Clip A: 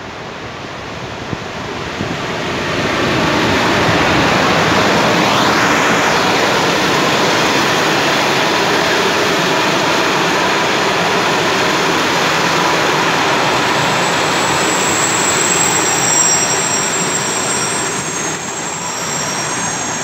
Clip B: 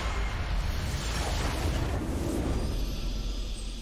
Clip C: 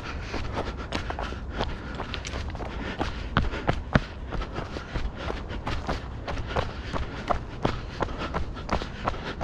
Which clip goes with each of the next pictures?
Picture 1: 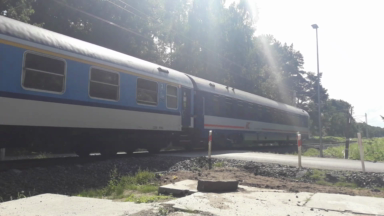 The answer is A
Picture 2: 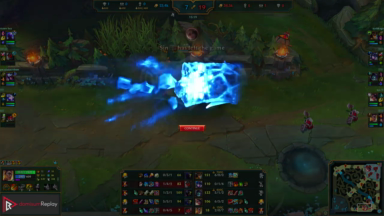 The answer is B